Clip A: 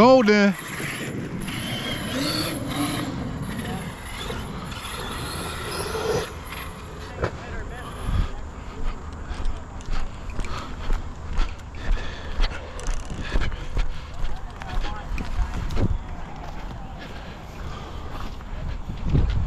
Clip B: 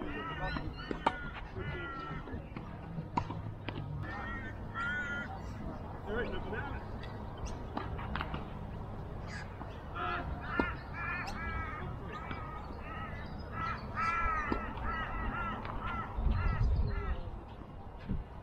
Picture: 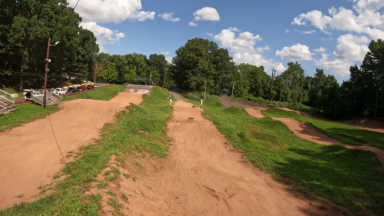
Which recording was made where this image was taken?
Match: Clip A